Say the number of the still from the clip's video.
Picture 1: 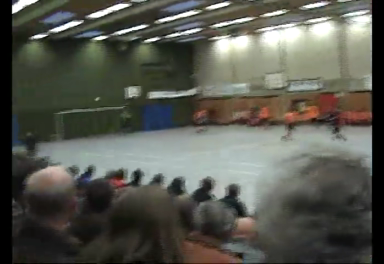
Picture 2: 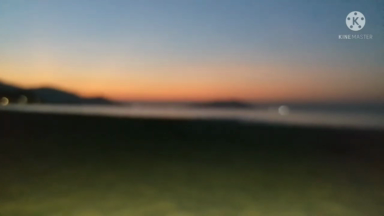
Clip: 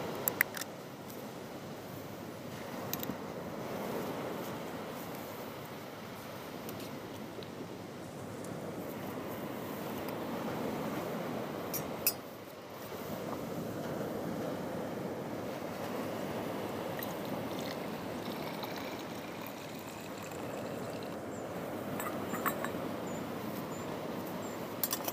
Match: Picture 2